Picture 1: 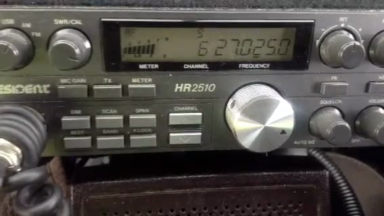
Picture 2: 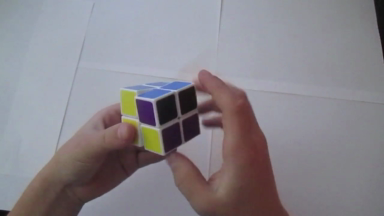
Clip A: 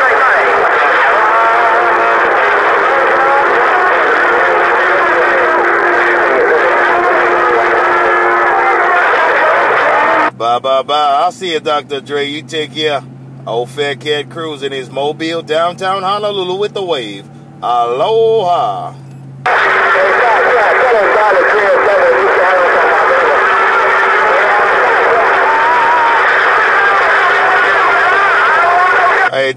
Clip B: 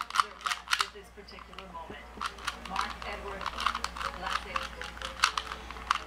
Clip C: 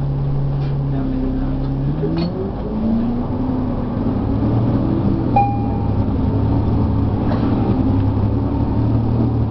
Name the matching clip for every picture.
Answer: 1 A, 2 B